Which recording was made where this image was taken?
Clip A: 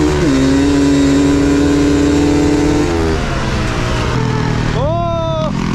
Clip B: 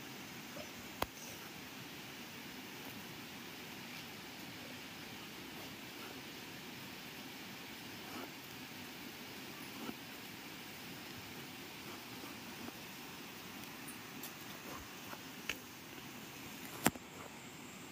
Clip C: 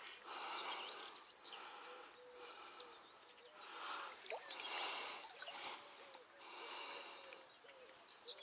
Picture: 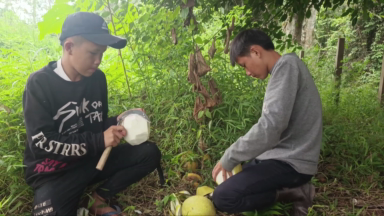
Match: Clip B